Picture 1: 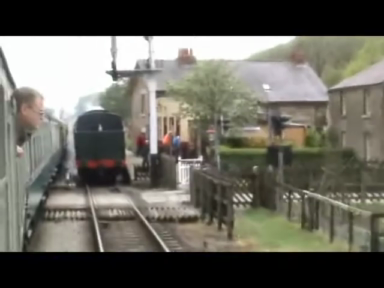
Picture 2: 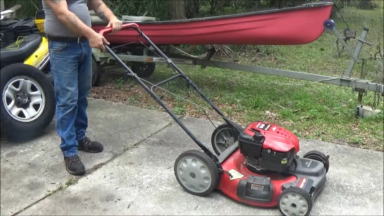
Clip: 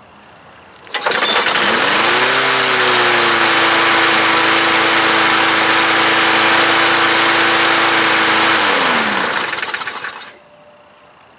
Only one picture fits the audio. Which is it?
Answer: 2